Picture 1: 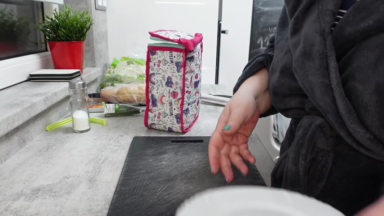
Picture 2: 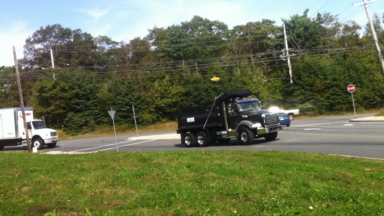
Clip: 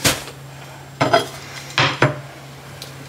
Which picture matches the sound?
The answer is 1